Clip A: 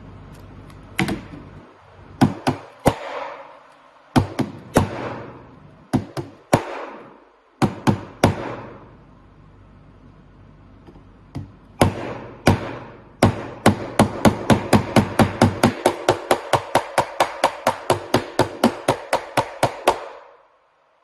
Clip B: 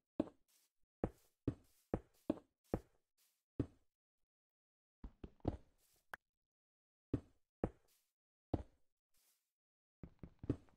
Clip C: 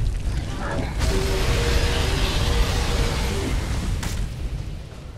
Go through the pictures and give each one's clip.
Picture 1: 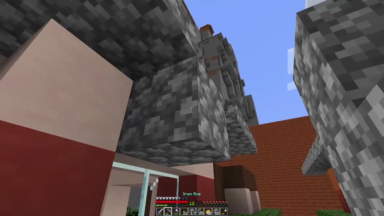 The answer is B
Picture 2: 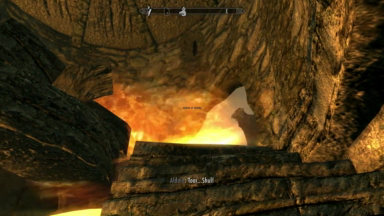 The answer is C